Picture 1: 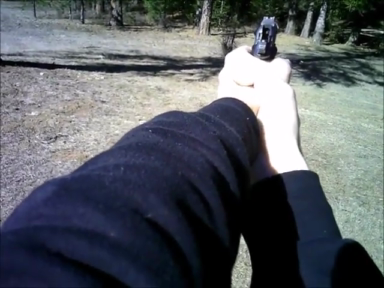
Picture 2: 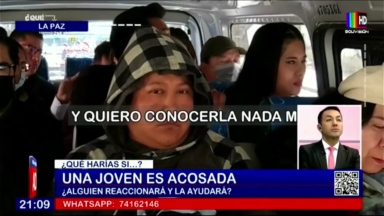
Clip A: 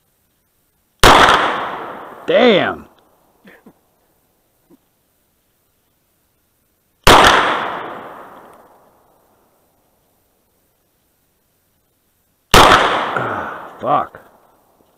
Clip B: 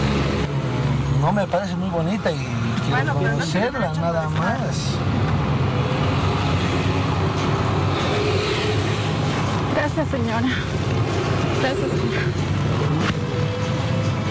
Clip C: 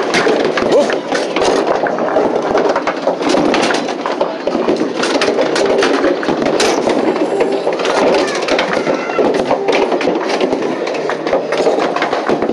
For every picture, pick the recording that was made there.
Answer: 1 A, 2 B